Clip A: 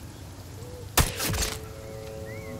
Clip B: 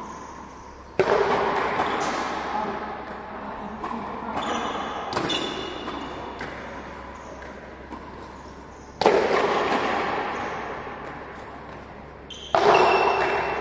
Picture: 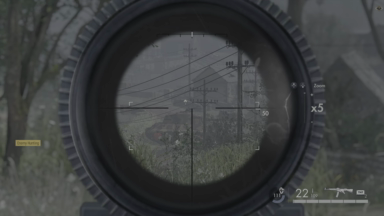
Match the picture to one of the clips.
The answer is A